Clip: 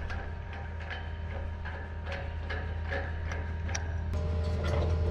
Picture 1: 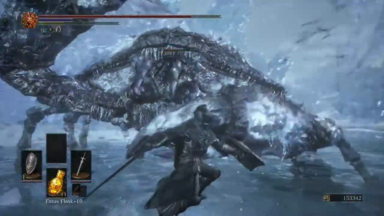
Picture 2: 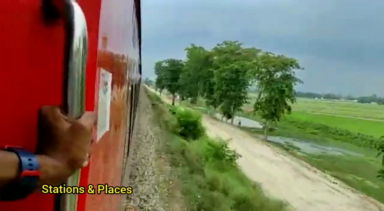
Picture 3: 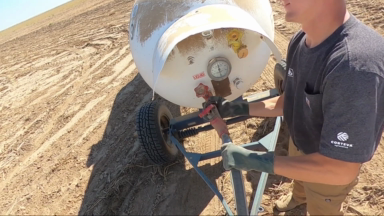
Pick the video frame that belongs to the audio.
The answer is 3